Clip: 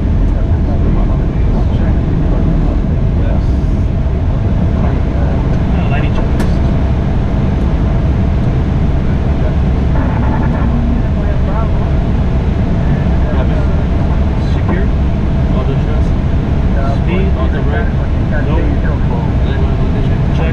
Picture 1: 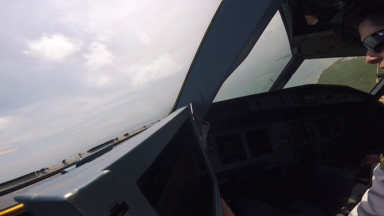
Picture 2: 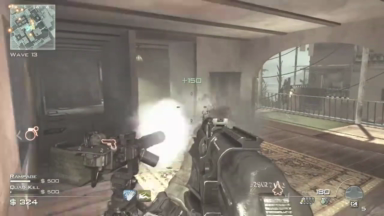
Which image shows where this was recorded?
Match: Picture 1